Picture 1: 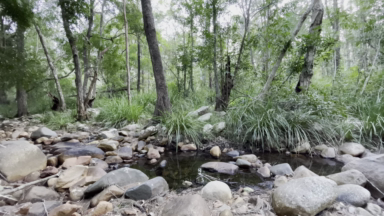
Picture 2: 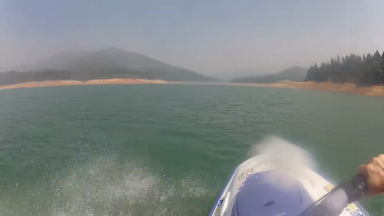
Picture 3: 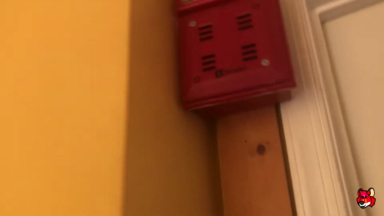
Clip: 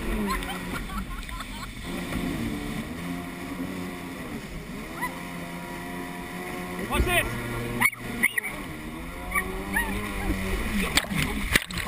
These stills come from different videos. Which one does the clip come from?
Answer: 2